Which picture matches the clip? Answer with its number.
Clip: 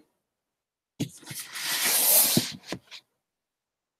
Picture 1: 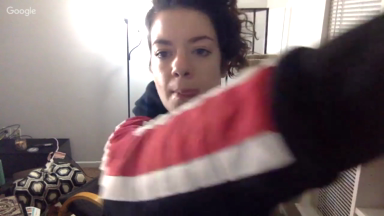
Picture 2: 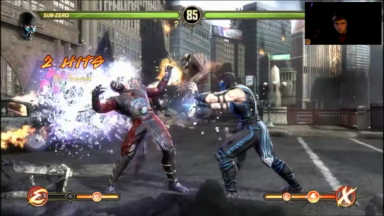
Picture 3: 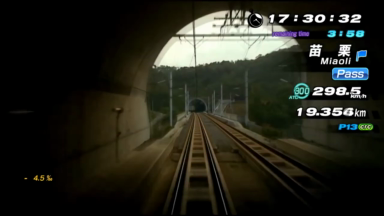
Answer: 1